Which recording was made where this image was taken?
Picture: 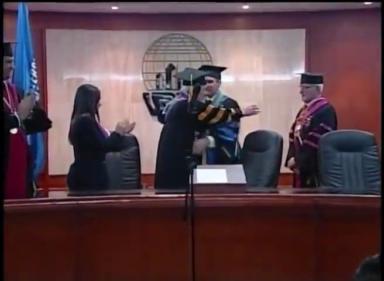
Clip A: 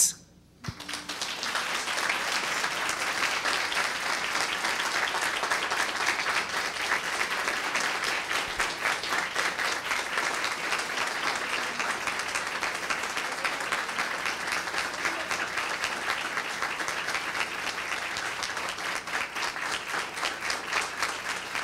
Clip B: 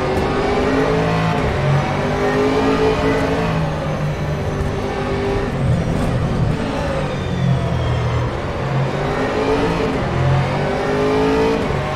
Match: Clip A